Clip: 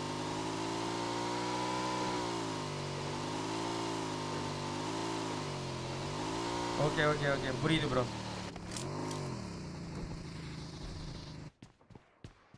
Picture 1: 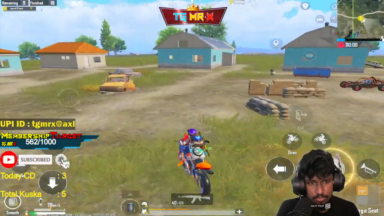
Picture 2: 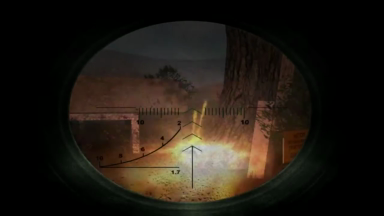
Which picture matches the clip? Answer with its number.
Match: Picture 1